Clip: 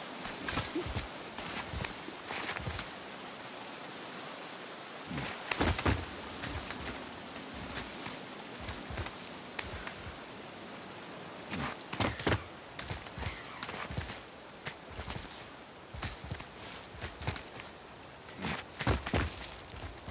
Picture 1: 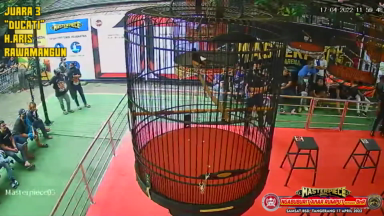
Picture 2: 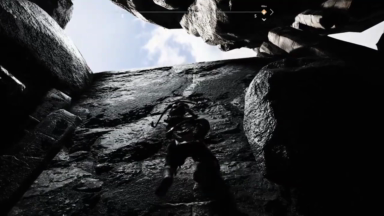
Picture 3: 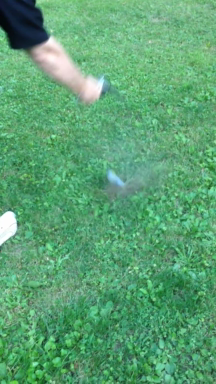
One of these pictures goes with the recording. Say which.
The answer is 2